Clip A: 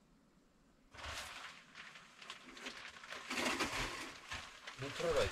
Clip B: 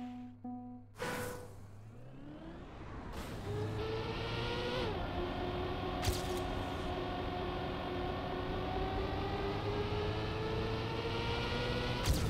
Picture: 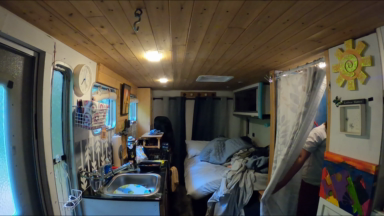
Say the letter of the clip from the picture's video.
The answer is A